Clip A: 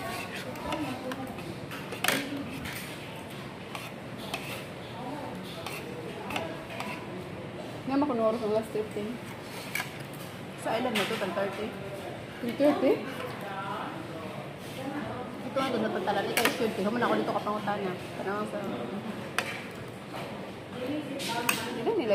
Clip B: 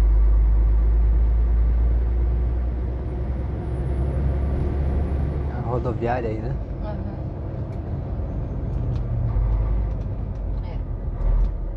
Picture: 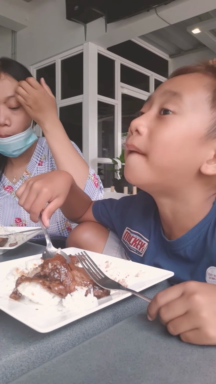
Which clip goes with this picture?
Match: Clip A